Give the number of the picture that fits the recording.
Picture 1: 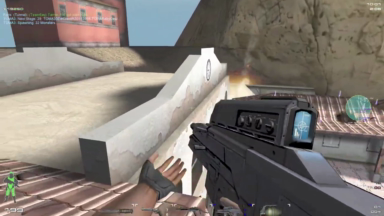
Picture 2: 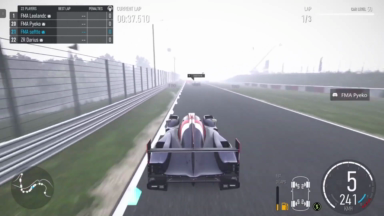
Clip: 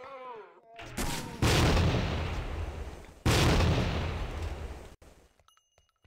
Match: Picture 1